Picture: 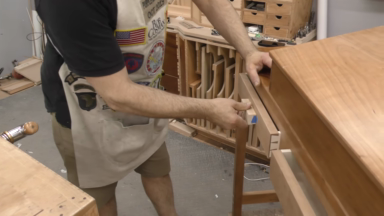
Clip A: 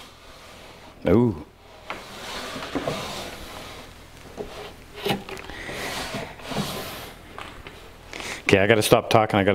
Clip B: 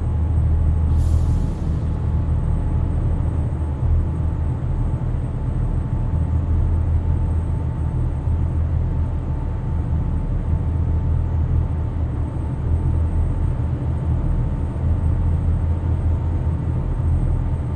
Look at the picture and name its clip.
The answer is A